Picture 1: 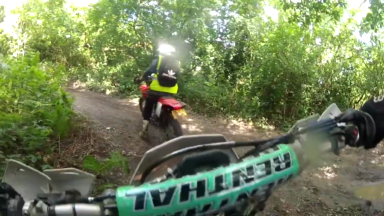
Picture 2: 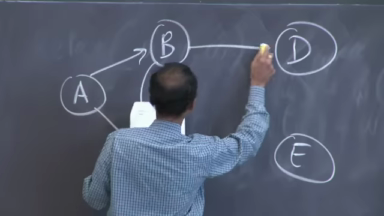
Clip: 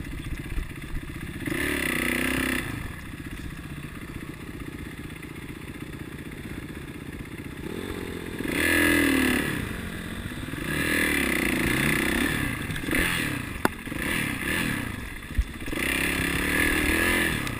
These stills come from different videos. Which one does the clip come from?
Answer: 1